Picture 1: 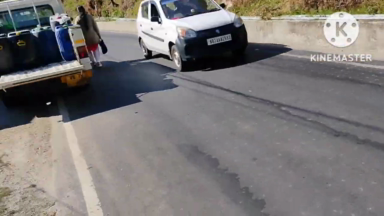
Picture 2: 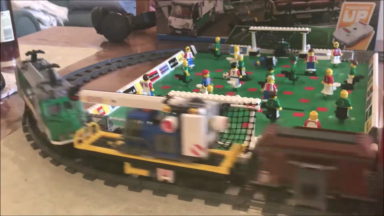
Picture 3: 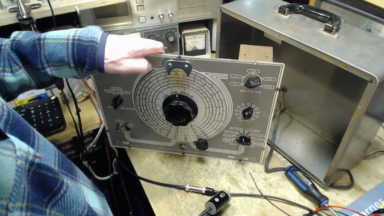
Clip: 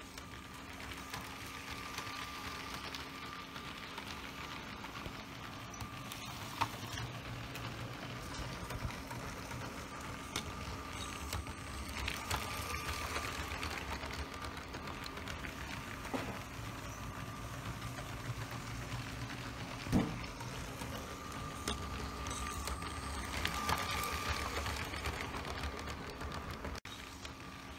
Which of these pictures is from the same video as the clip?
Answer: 2